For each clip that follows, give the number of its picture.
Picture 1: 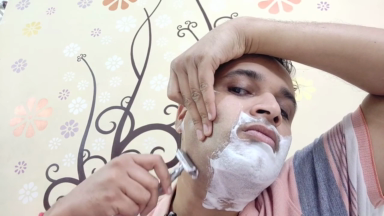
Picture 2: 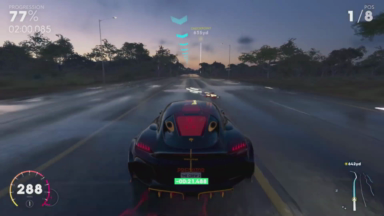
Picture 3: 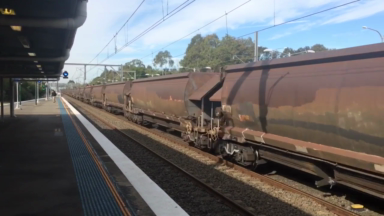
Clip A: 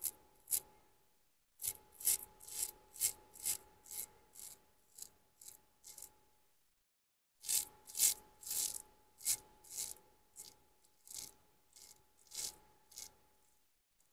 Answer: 1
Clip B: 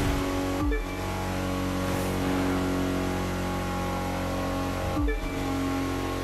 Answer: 2